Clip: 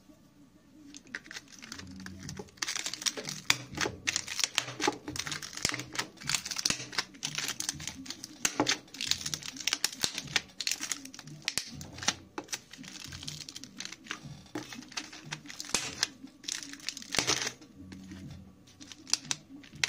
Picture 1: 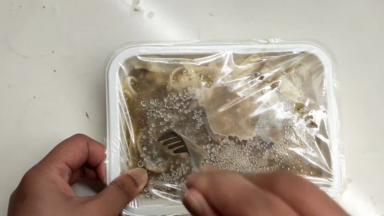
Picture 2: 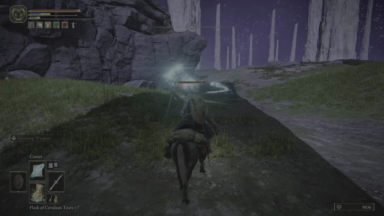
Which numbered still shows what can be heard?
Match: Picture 1